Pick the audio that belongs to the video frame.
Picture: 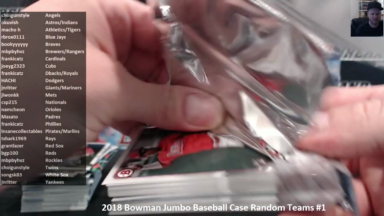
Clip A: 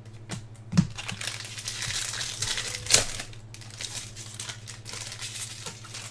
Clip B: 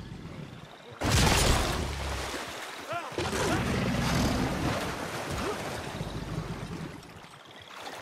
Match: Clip A